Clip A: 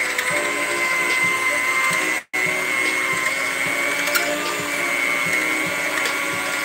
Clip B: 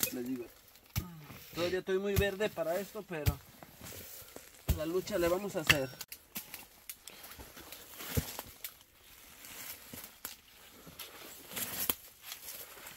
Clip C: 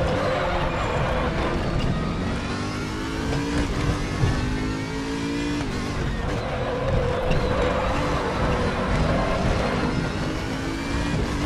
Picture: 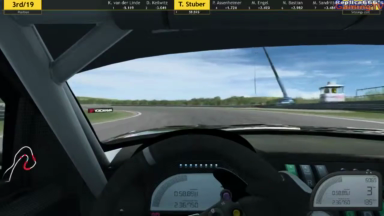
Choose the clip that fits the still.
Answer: C